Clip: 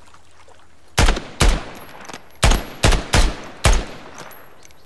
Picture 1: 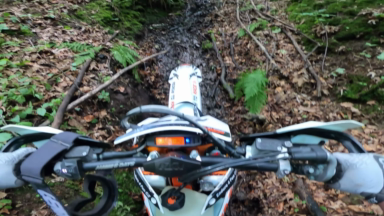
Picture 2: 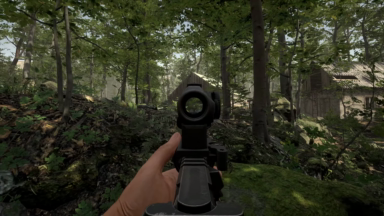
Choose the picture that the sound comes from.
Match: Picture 2